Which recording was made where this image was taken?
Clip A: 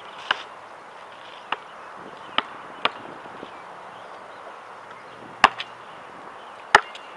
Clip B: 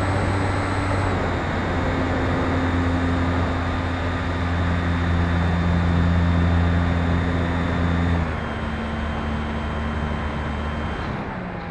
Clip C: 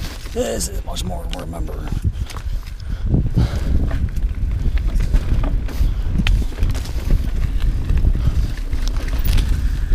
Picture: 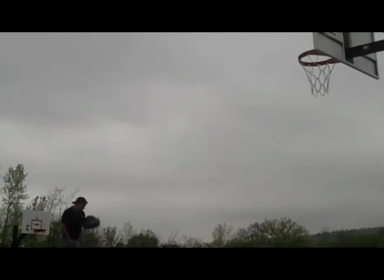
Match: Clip A